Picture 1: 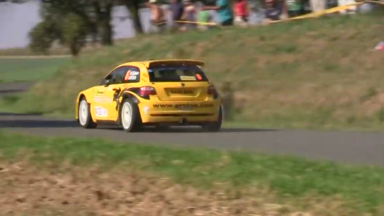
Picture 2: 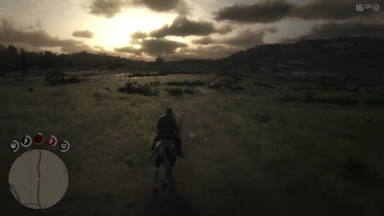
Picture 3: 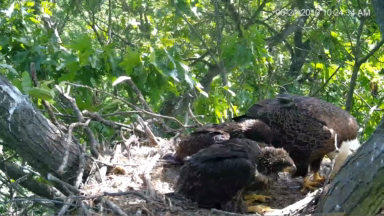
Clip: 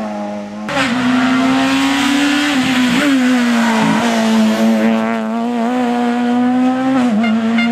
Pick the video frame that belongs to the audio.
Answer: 1